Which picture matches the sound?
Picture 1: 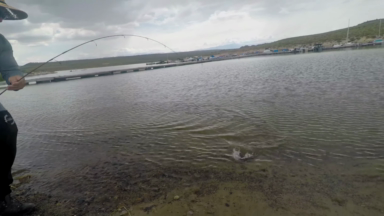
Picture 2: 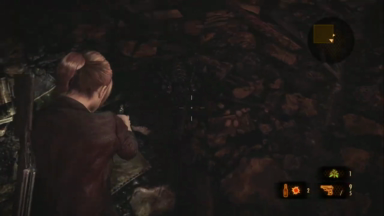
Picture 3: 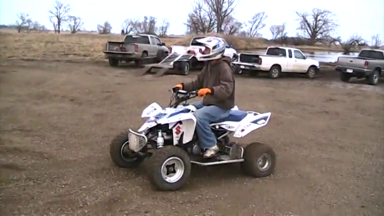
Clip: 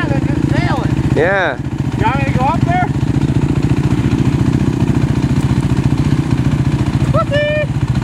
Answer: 3